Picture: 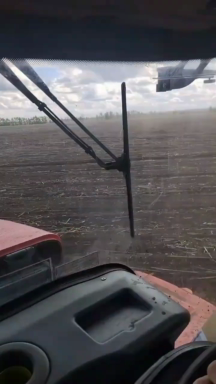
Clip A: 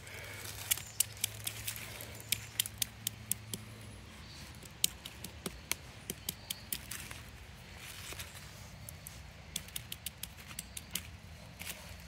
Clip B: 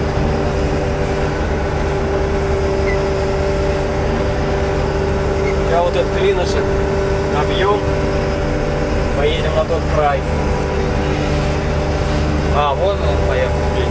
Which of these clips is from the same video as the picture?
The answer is B